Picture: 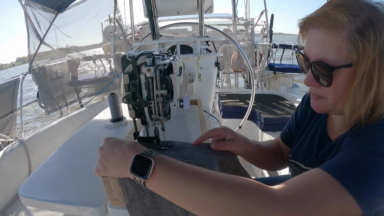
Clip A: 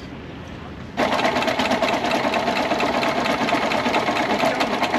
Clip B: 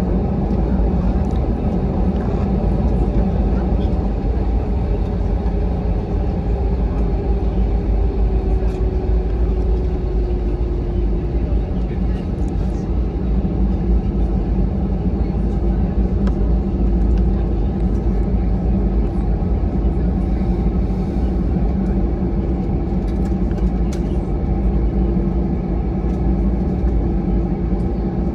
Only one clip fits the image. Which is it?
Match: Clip A